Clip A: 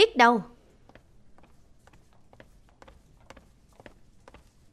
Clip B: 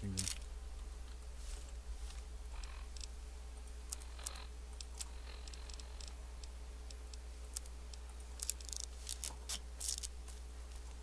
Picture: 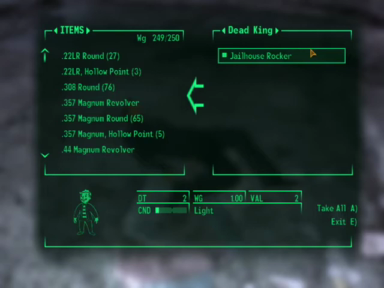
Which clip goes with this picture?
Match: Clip B